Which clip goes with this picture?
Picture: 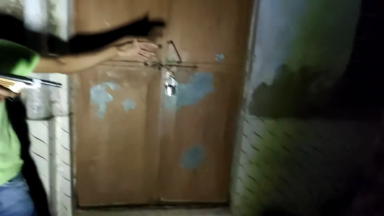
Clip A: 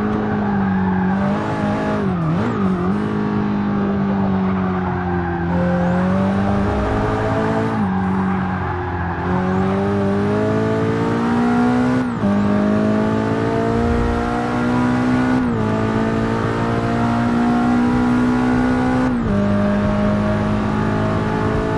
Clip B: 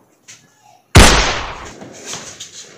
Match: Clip B